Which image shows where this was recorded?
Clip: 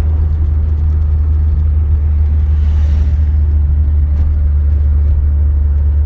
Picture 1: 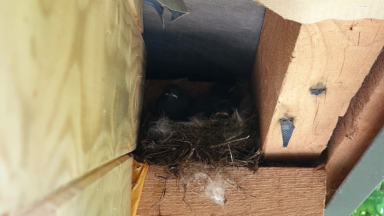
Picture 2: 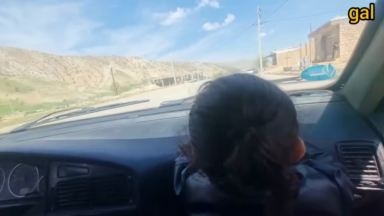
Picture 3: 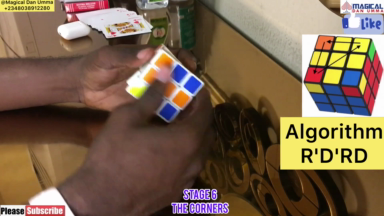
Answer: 2